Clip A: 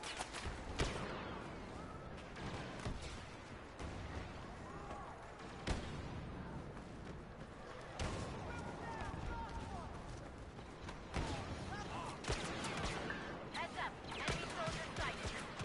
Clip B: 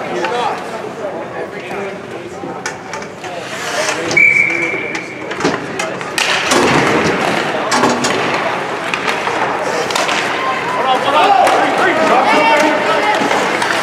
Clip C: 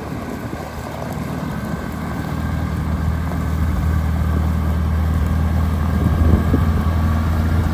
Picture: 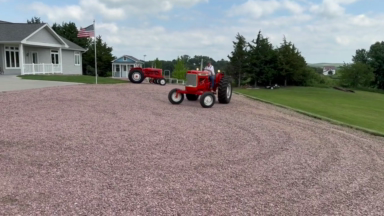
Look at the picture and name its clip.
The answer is C